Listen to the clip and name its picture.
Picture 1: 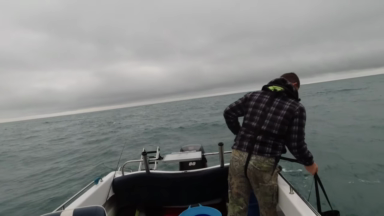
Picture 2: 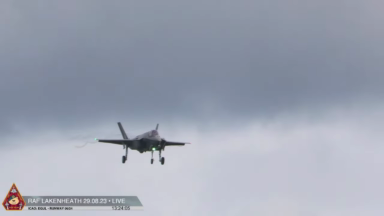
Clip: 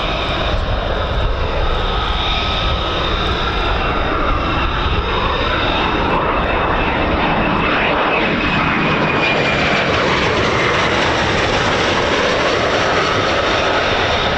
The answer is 2